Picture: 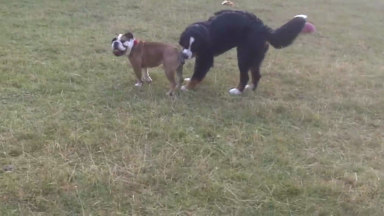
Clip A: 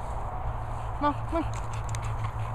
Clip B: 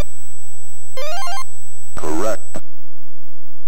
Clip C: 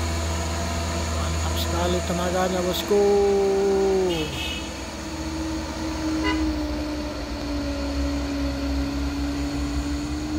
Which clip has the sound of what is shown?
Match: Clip A